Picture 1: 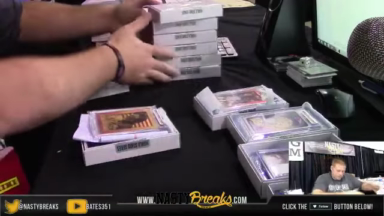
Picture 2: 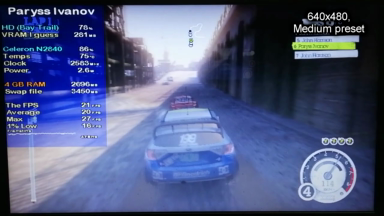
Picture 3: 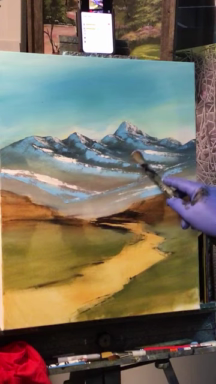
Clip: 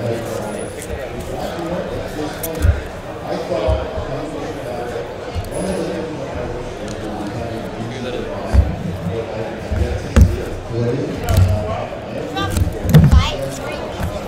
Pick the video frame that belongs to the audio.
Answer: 1